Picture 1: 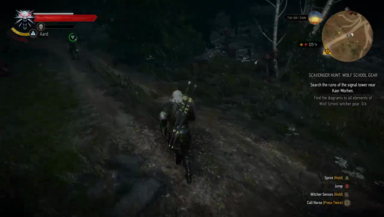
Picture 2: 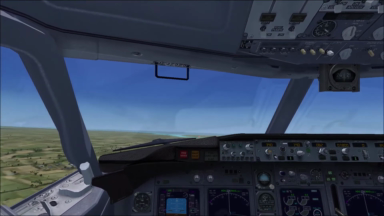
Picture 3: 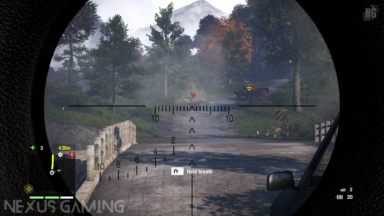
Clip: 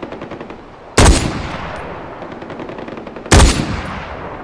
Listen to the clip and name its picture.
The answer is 3